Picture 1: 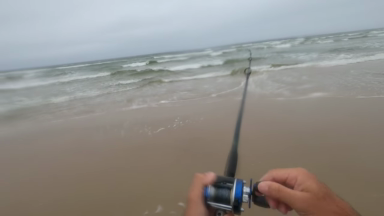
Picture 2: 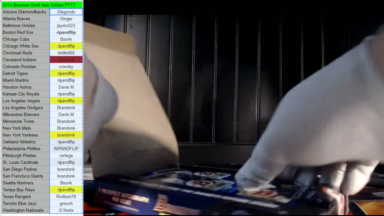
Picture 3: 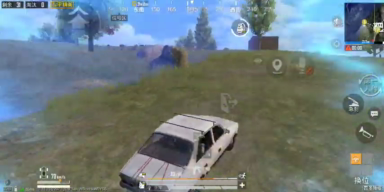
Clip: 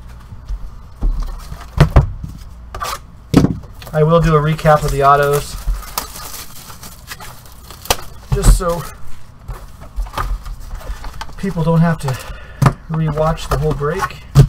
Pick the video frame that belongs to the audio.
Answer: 2